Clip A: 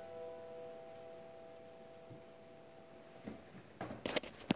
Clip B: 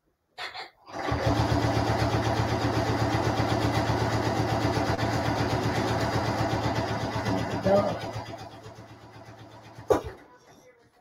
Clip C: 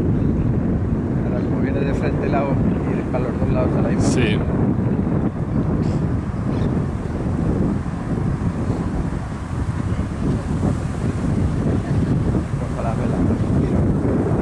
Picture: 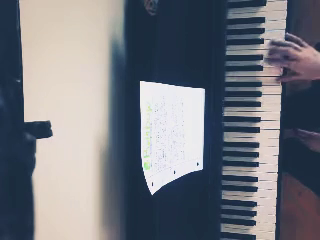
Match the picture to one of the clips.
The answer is A